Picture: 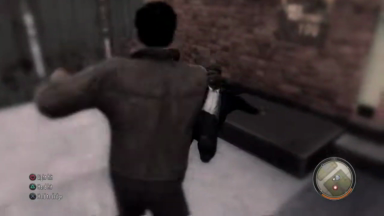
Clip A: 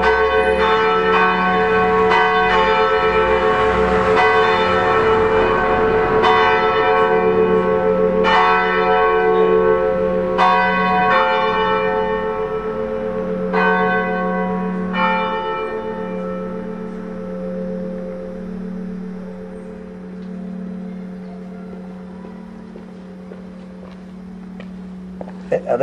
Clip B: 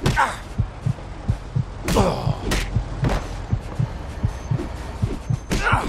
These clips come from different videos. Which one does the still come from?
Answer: B